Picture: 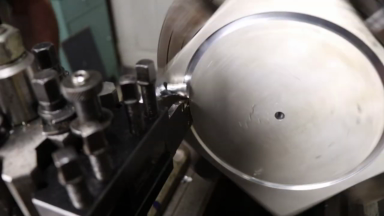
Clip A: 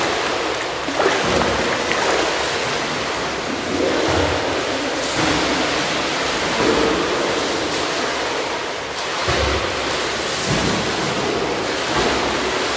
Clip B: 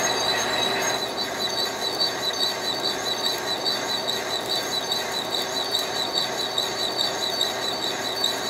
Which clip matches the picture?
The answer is B